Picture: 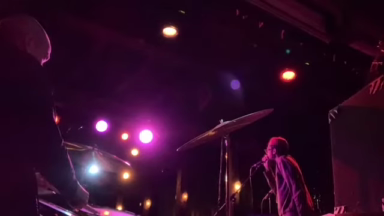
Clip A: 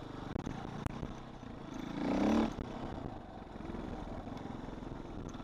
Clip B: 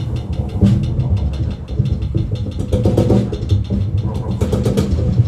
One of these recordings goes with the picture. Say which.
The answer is B